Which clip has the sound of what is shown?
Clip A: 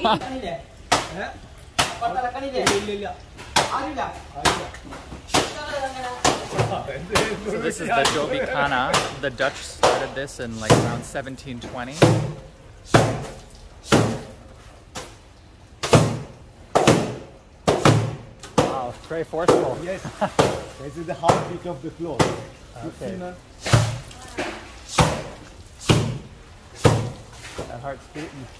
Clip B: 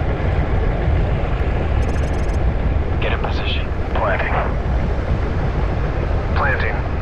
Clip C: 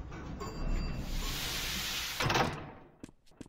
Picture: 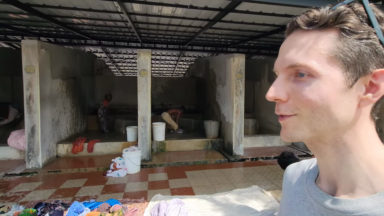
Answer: A